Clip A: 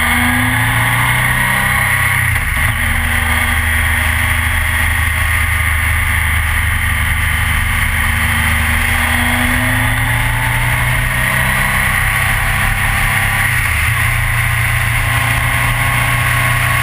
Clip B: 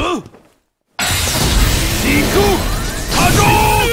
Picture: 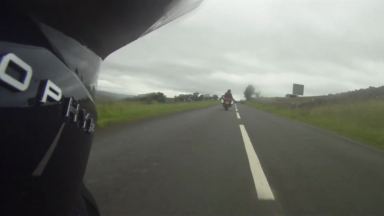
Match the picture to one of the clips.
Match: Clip A